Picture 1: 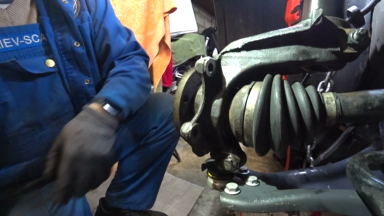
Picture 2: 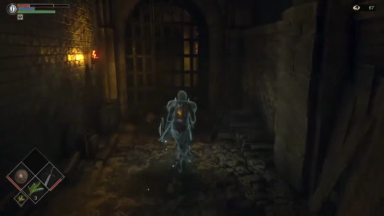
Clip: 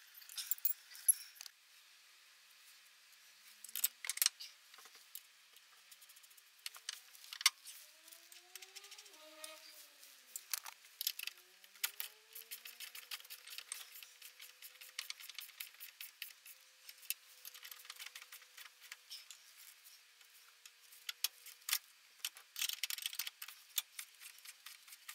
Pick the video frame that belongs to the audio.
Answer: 1